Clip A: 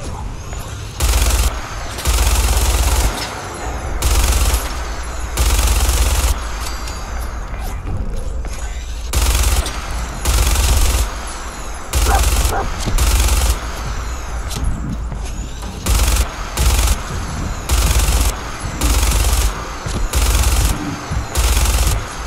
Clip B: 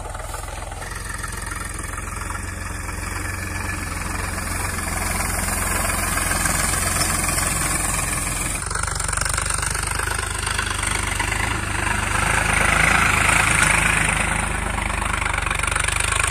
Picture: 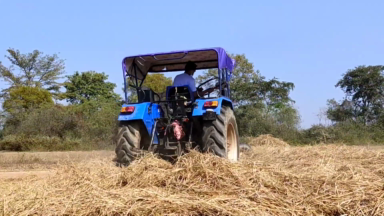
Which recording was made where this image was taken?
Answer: B